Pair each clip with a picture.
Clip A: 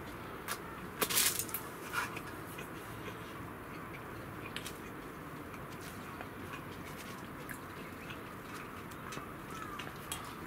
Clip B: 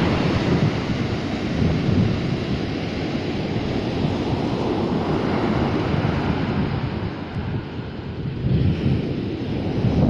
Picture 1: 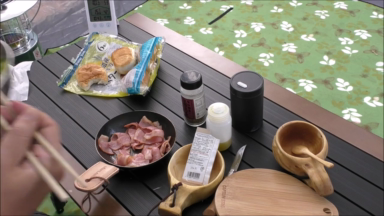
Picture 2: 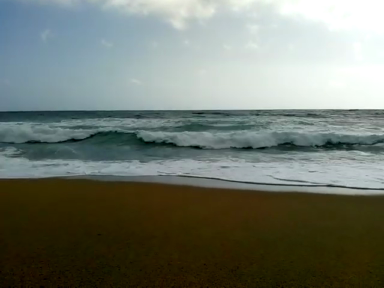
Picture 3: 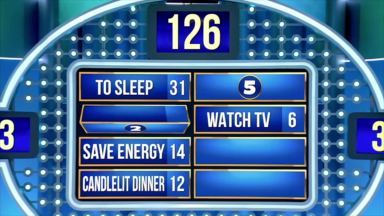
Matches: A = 1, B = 2